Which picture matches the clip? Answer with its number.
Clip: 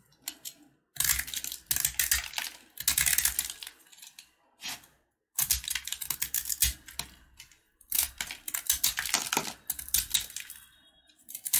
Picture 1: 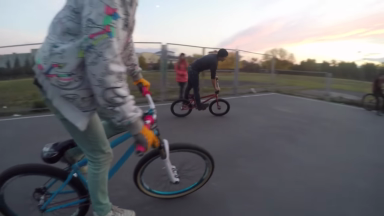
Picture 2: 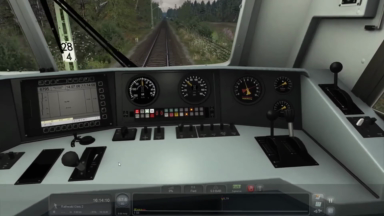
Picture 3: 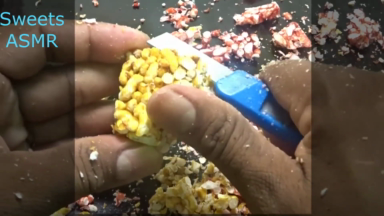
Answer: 3